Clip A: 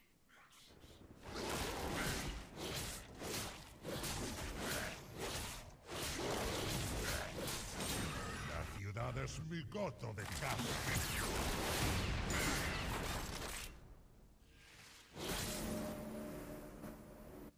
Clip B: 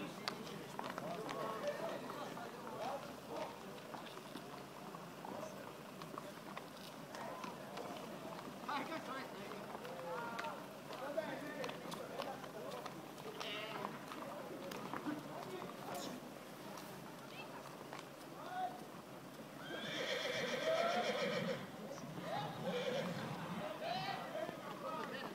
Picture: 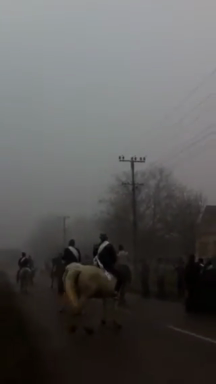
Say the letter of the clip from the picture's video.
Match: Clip B